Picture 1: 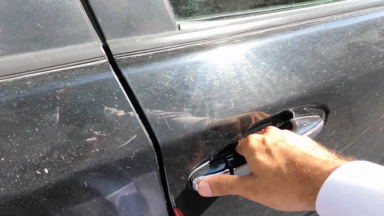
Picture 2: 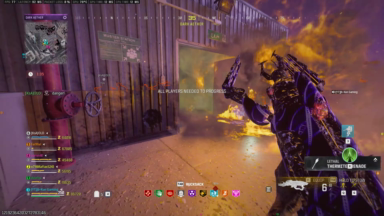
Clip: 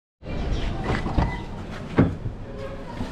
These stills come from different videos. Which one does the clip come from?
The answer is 1